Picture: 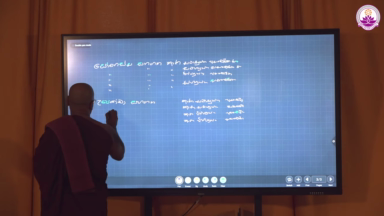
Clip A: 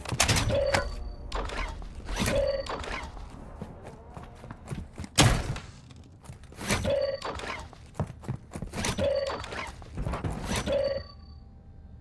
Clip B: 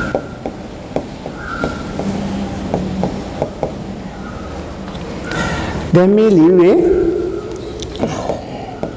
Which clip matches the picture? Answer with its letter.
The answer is B